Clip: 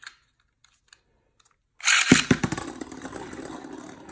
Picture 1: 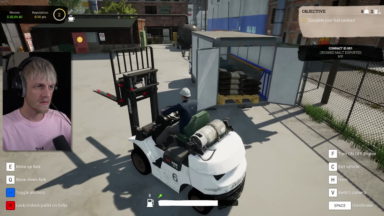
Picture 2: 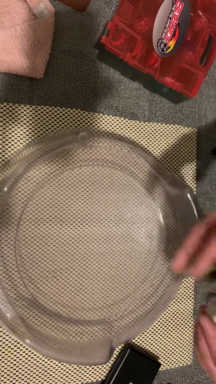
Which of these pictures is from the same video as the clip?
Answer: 2